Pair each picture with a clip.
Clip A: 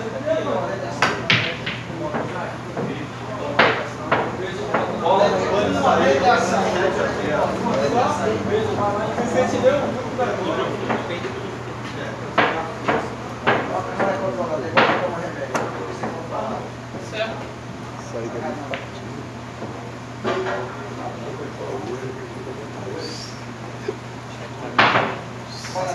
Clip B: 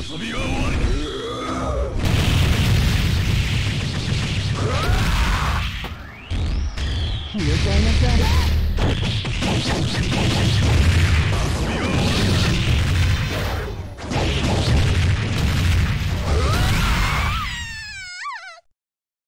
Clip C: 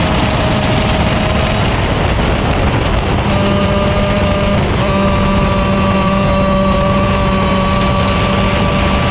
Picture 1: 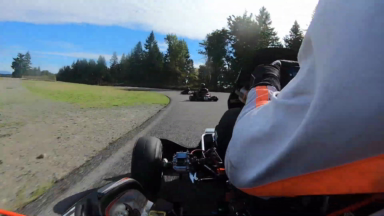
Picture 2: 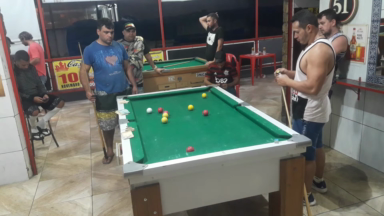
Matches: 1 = C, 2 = A